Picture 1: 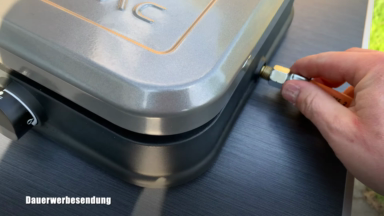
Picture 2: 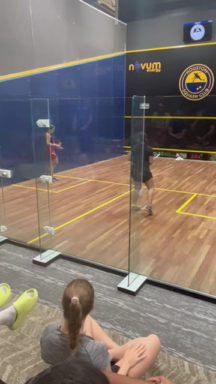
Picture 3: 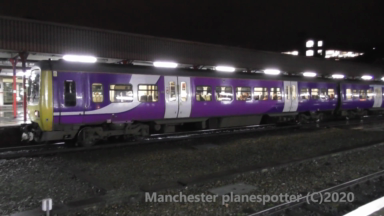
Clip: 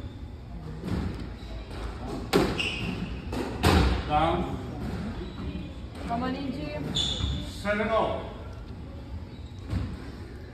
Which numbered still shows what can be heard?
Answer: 2